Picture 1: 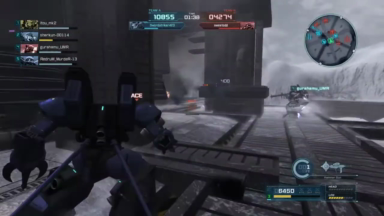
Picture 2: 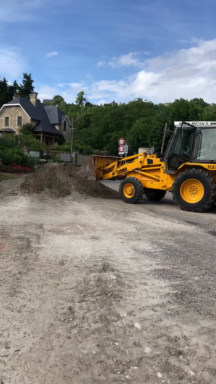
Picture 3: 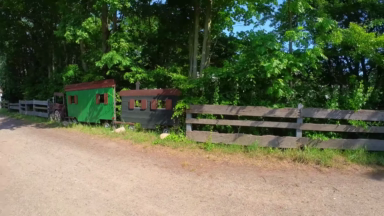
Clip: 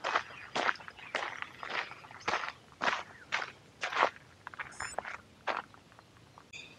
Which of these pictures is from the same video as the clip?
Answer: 3